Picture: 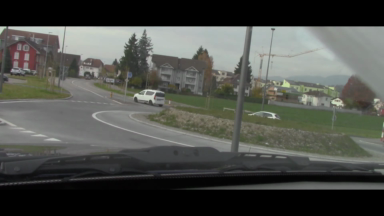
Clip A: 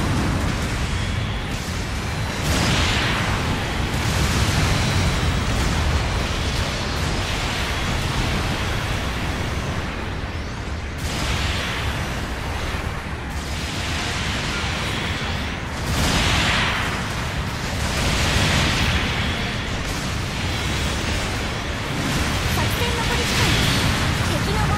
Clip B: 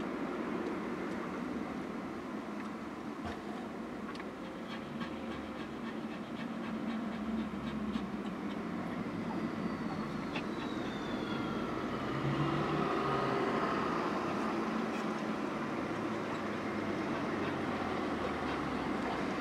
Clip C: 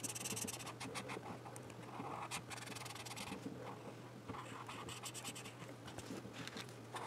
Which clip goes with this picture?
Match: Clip B